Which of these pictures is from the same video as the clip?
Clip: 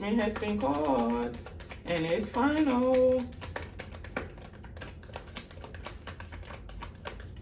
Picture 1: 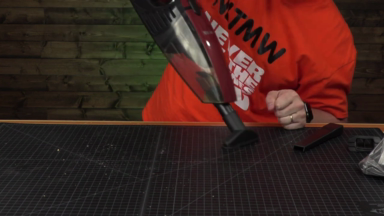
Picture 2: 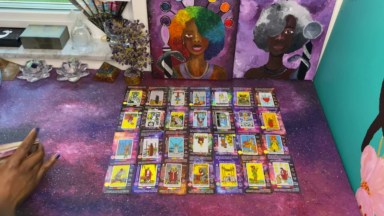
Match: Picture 2